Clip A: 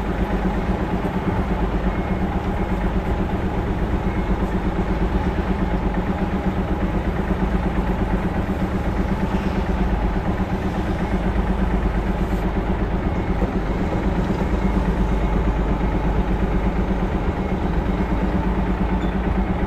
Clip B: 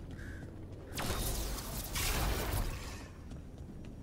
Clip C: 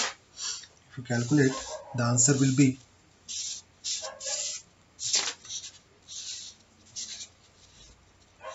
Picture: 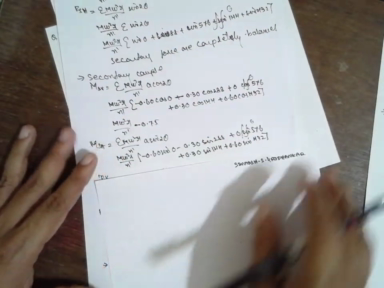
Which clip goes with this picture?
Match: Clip C